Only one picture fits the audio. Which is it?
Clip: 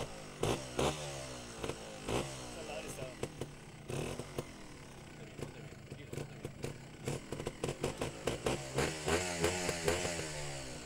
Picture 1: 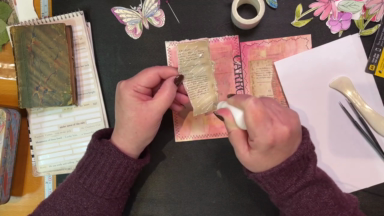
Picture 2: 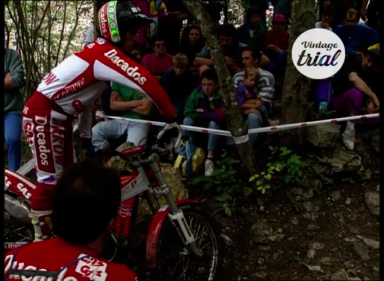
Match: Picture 2